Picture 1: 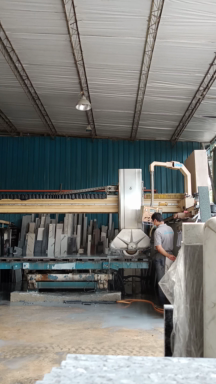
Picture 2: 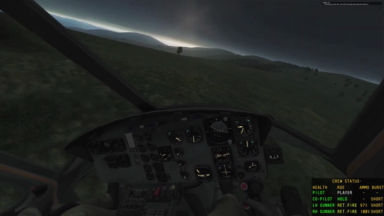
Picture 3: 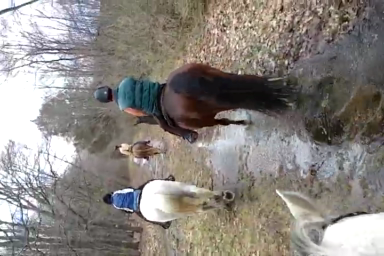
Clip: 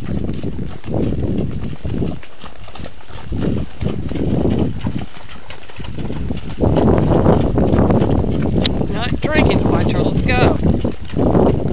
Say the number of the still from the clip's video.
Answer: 3